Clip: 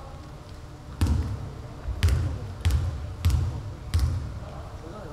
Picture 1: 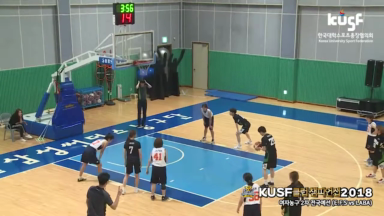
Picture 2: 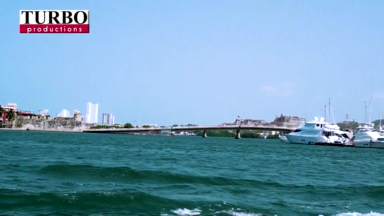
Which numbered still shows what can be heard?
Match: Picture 1